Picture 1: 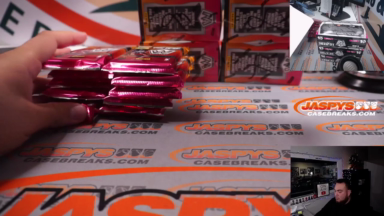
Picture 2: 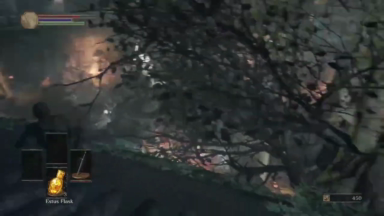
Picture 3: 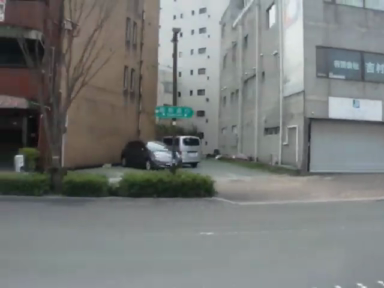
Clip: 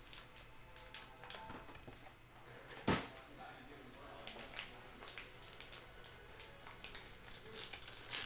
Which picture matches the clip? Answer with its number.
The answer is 1